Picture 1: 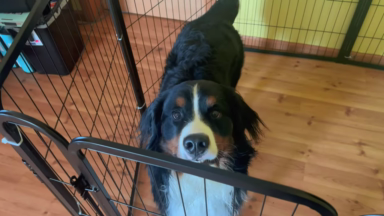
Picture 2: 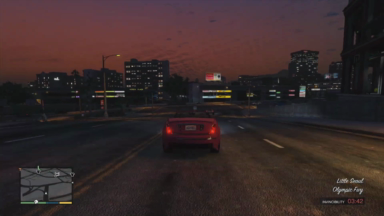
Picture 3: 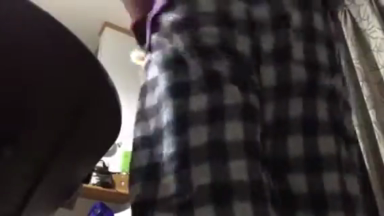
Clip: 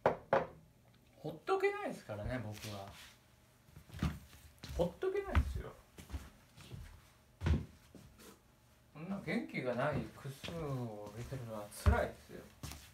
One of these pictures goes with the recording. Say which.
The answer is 3